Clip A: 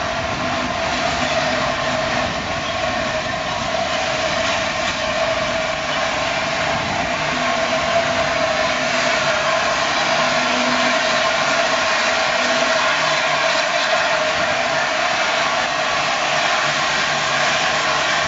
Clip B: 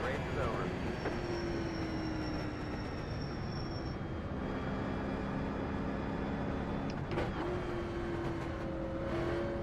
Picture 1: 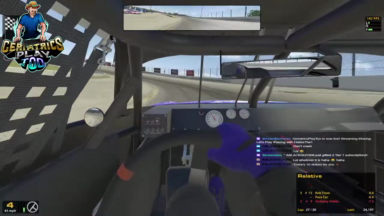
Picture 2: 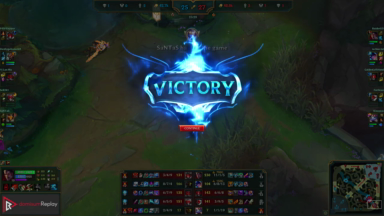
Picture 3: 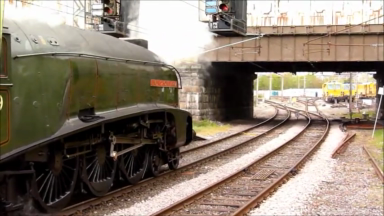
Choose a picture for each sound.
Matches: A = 3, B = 1